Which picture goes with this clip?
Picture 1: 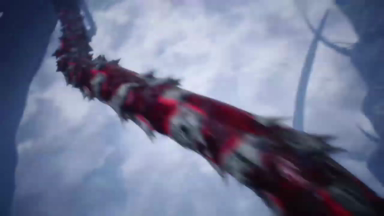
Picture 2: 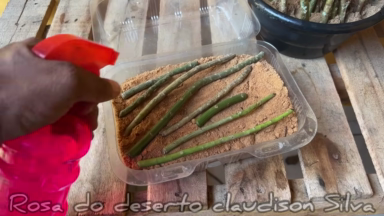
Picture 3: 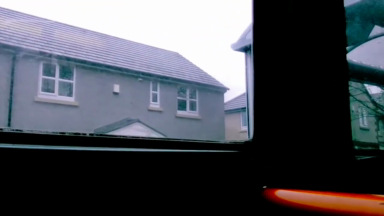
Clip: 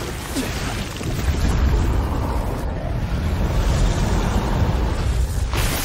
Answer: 1